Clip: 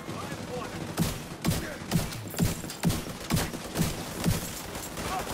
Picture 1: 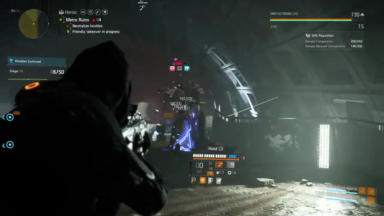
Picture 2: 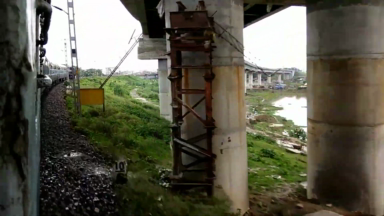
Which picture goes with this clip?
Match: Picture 1